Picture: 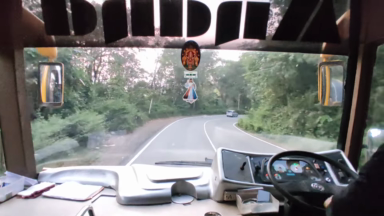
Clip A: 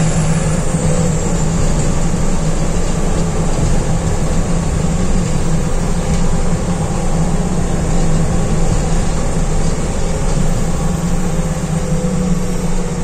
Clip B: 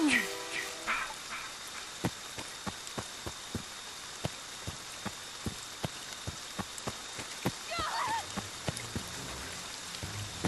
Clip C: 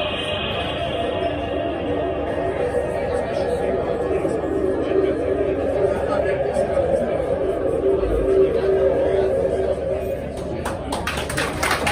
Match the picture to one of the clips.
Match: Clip A